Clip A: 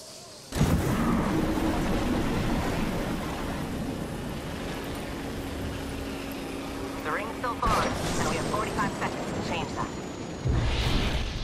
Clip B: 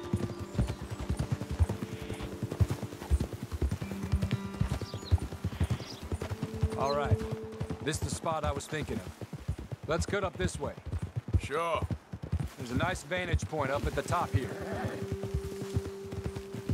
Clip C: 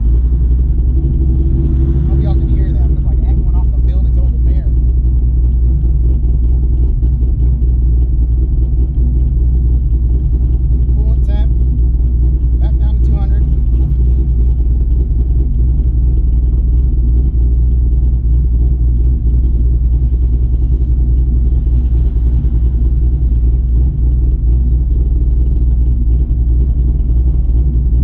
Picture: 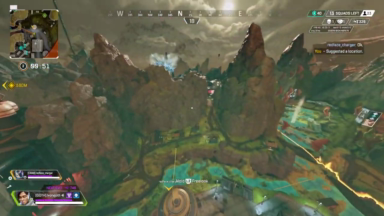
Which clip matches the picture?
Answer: A